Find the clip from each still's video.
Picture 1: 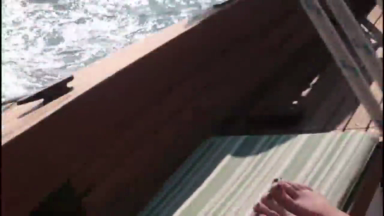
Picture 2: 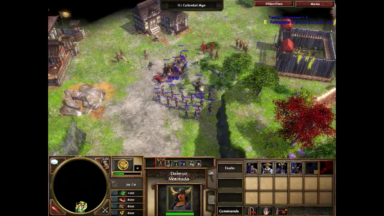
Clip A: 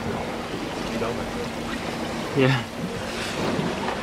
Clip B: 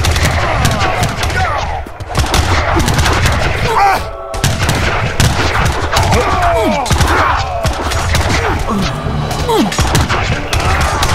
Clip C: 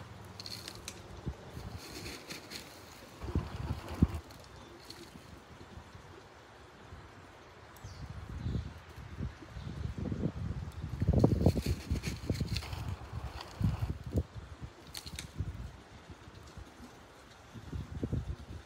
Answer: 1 A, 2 B